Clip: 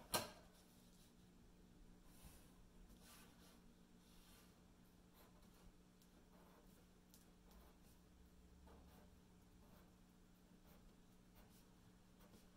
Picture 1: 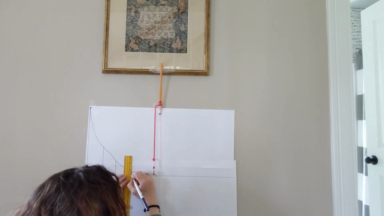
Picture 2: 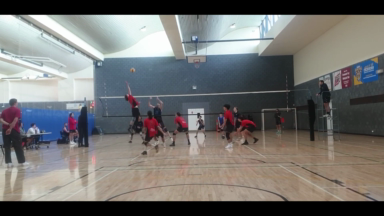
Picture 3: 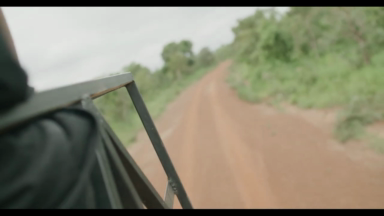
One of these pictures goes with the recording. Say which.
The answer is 1